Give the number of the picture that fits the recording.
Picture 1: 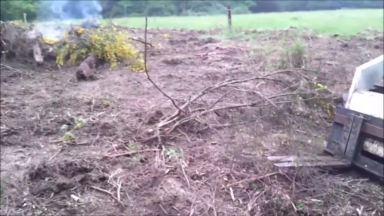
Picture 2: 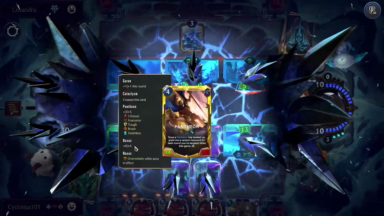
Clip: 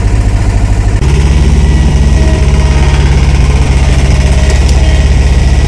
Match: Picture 1